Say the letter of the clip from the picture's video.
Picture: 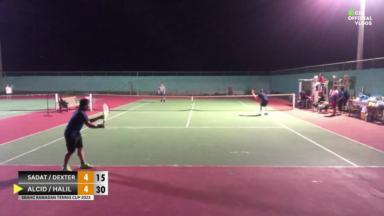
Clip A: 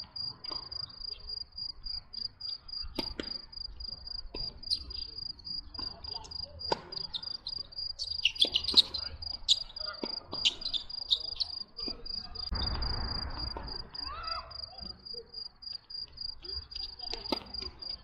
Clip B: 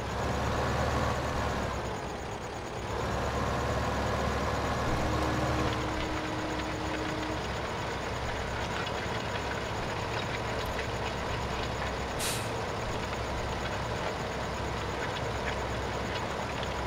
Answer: A